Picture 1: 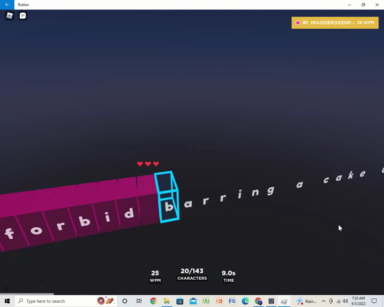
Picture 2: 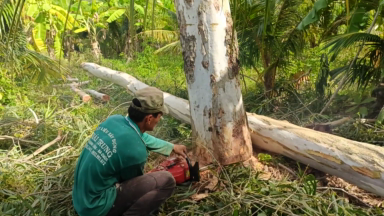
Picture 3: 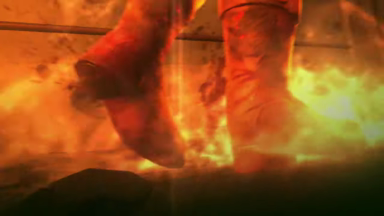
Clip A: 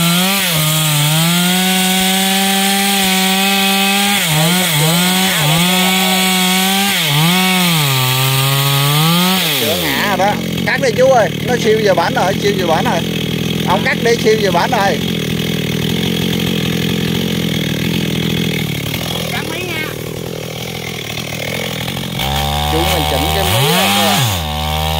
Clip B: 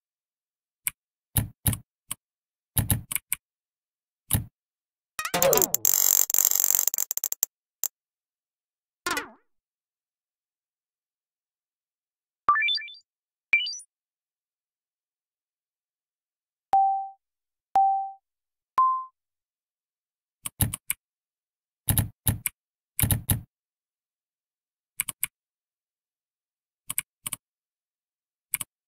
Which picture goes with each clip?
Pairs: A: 2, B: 1